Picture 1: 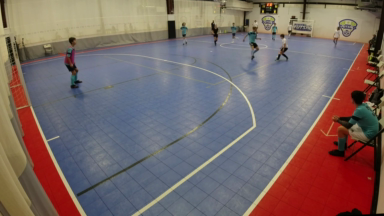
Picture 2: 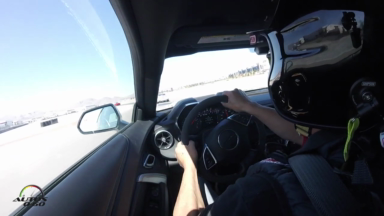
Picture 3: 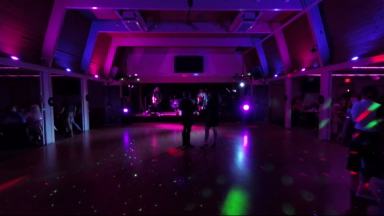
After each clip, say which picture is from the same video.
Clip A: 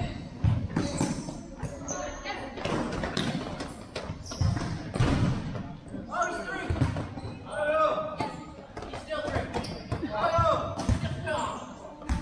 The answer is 1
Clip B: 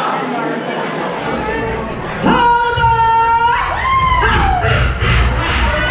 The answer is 3